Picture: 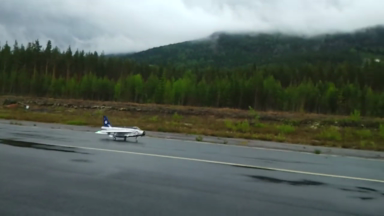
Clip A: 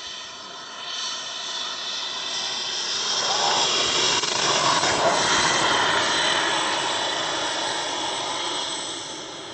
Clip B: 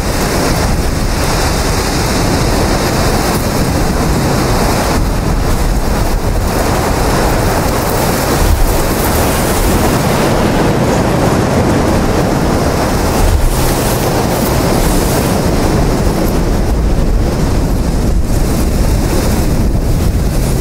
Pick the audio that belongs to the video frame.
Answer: A